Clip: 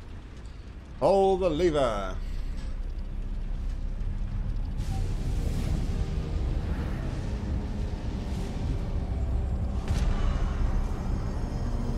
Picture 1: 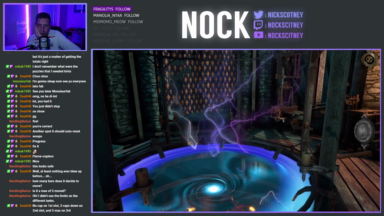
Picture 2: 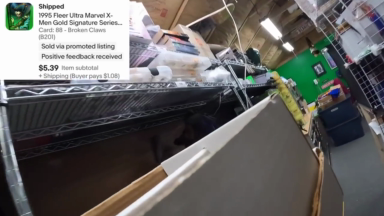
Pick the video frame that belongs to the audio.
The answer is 1